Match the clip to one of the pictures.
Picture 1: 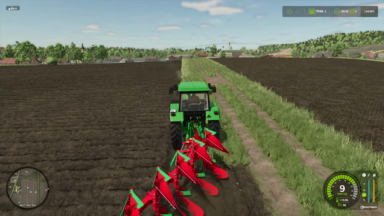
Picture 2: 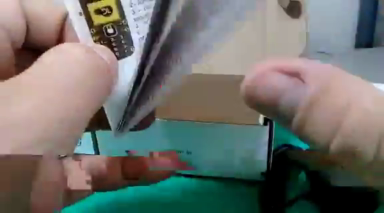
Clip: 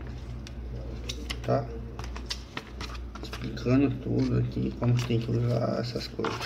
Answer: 2